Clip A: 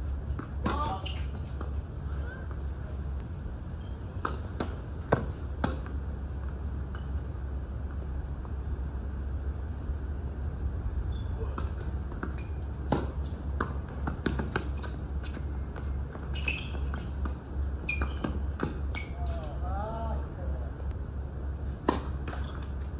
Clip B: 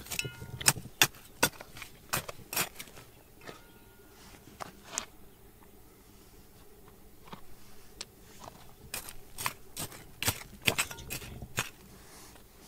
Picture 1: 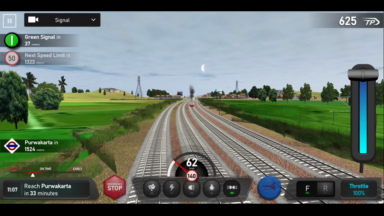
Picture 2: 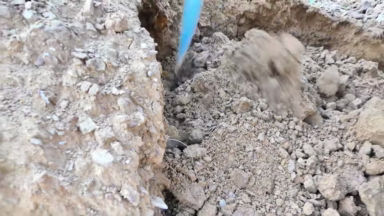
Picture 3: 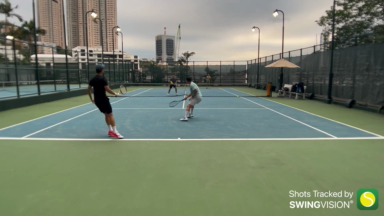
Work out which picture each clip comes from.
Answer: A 3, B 2